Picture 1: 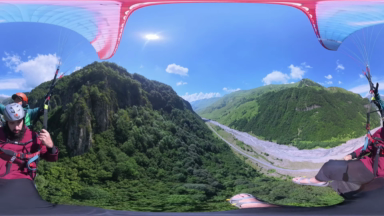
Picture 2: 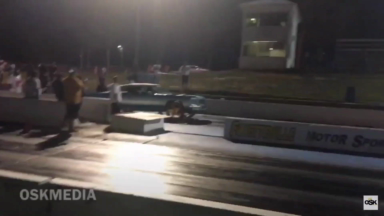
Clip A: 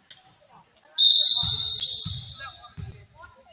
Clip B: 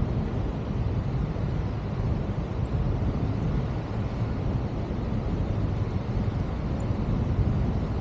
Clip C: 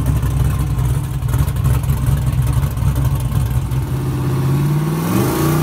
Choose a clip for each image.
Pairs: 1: B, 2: C